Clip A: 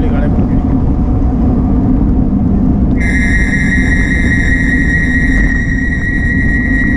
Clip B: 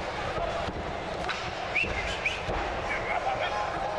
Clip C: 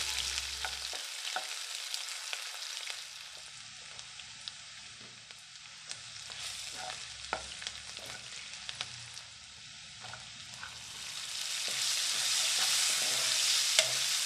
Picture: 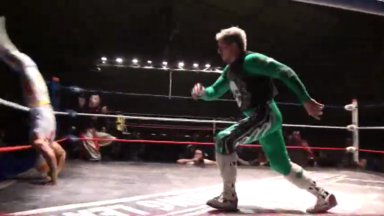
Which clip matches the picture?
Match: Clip B